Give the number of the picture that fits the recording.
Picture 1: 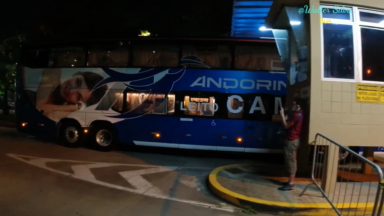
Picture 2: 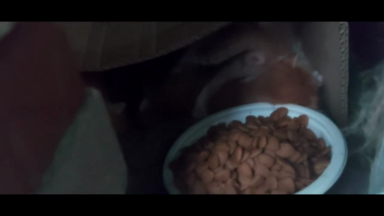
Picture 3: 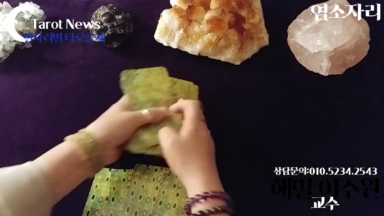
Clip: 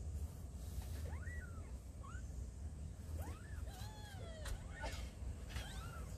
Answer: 2